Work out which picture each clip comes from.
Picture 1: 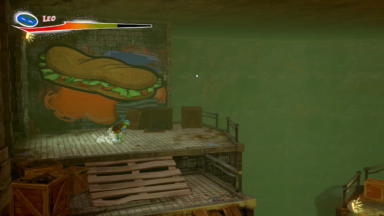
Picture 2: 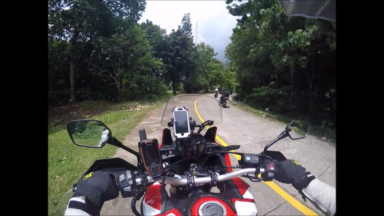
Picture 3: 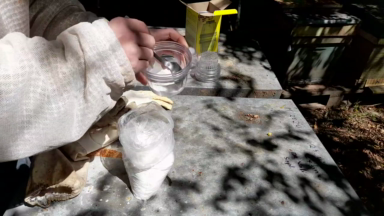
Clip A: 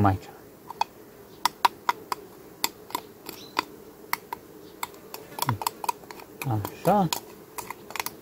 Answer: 3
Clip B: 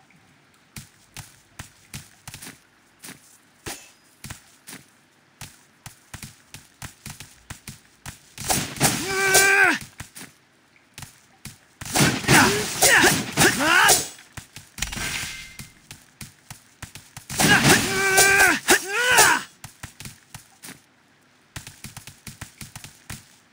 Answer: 1